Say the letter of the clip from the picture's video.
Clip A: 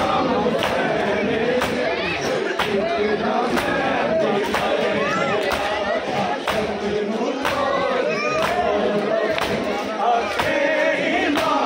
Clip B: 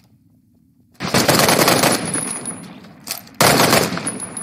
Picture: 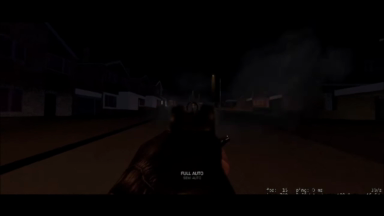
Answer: B